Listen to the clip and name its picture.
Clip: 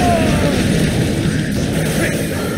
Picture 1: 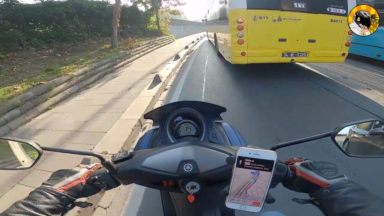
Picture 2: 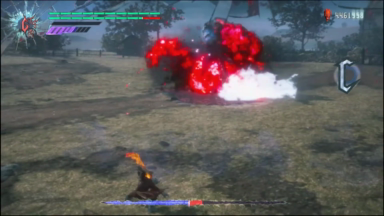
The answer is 2